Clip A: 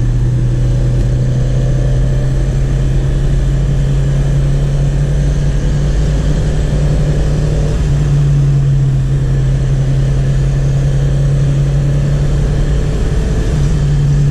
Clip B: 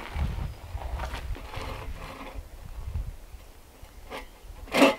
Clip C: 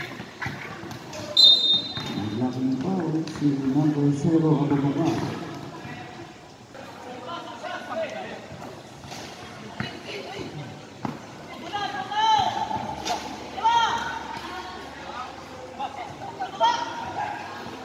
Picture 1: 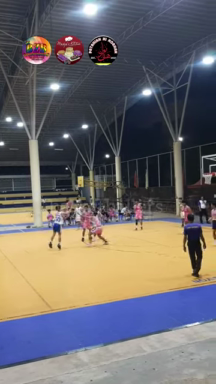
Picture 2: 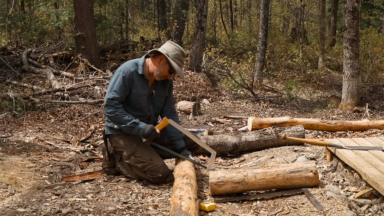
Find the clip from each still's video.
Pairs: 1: C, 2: B